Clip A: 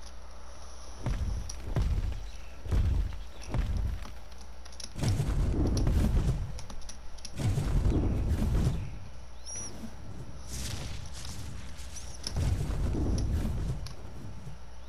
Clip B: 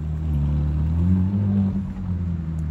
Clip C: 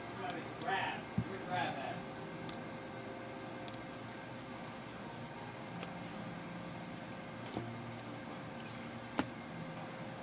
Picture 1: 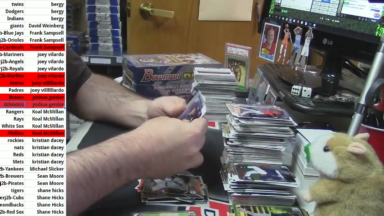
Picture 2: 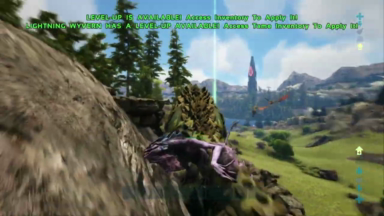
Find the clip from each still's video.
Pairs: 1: C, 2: A